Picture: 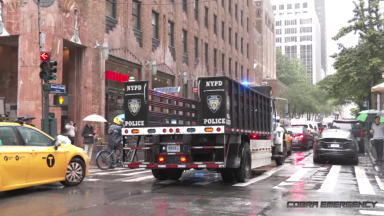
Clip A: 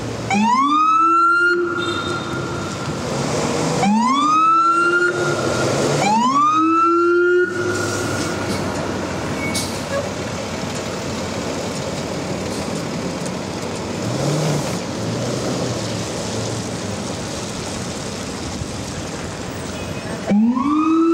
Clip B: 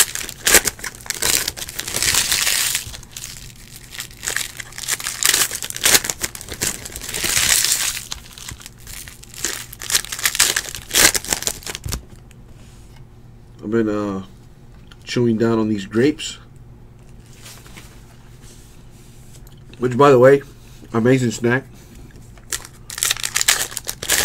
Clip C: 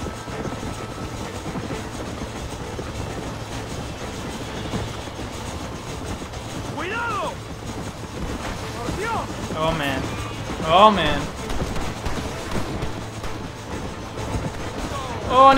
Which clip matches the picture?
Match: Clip A